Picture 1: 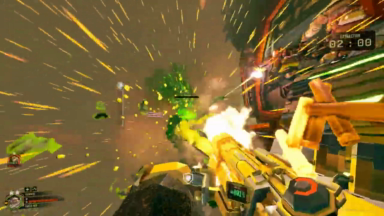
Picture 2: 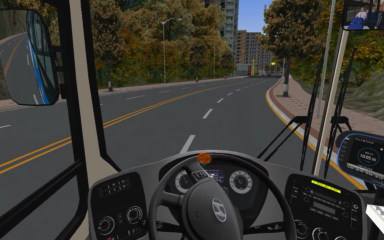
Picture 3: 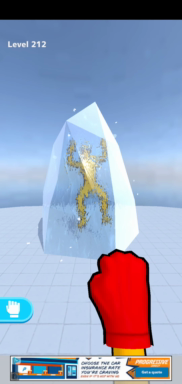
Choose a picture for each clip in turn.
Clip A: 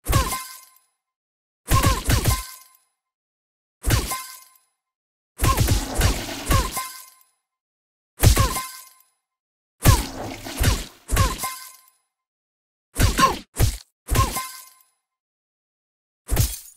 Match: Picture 3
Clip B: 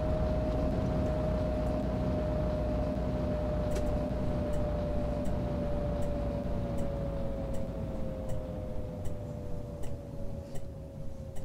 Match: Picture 2